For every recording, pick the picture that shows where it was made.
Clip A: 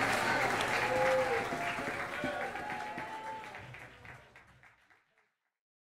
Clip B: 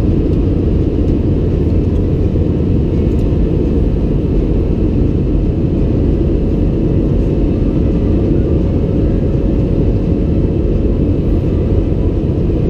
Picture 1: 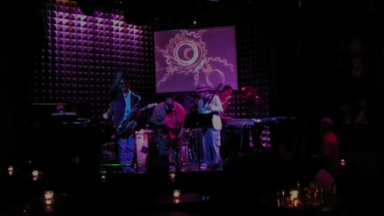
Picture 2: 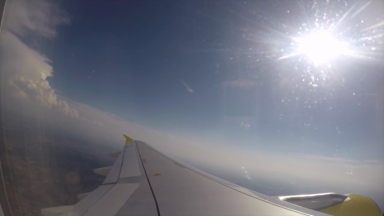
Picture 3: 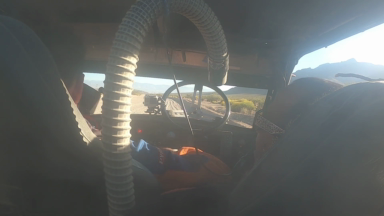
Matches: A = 1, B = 2